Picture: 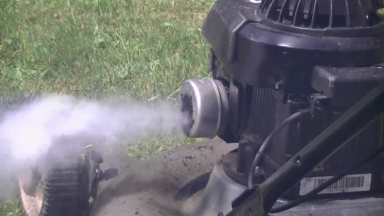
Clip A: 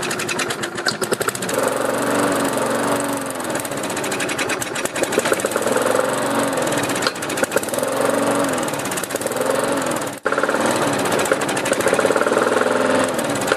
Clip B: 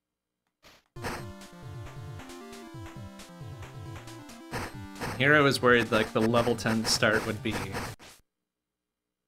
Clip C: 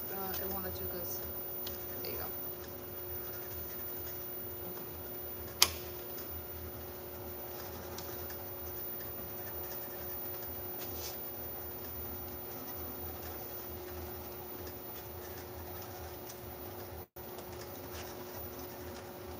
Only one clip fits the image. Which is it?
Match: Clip A